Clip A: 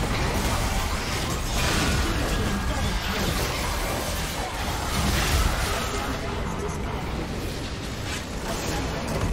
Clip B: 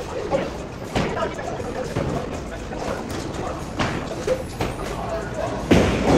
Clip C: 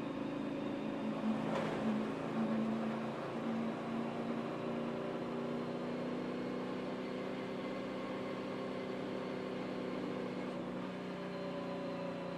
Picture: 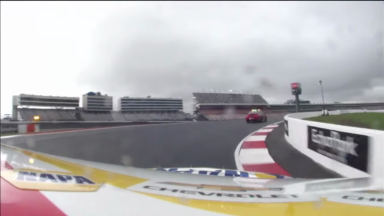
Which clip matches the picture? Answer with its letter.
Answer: C